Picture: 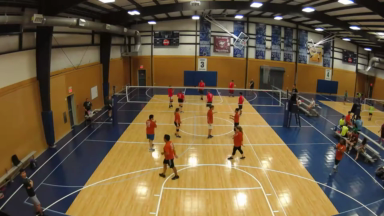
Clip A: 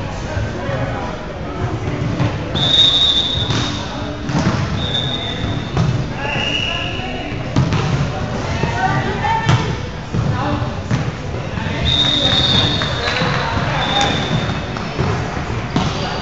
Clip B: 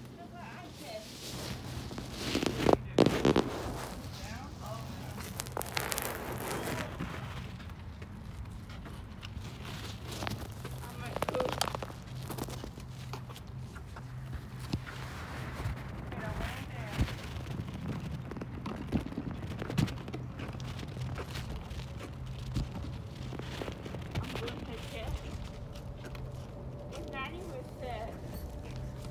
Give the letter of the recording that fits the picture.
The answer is A